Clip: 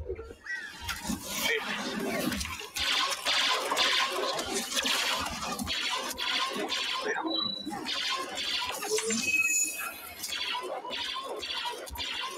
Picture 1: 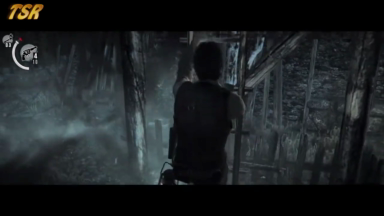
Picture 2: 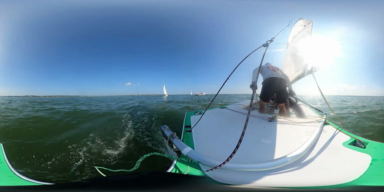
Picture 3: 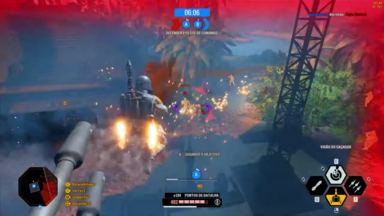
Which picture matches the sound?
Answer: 3